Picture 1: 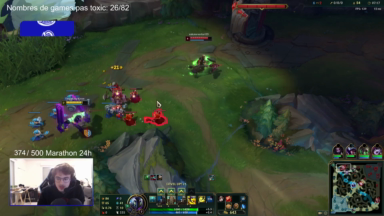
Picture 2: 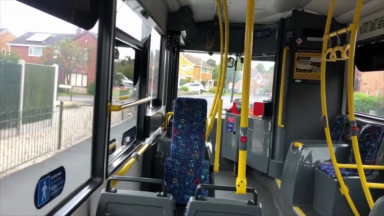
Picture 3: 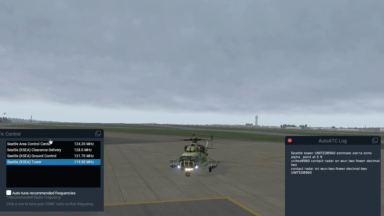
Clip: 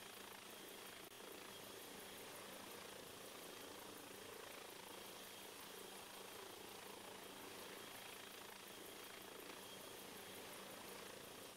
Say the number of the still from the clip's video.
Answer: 3